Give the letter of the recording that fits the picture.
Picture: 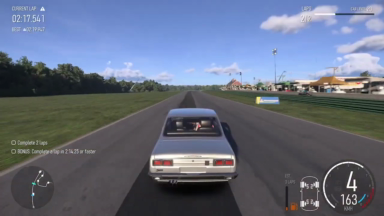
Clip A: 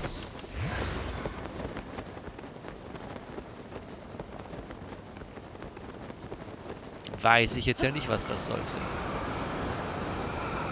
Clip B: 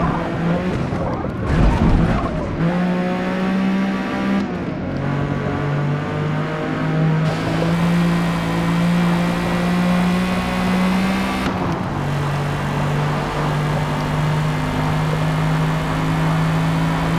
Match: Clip B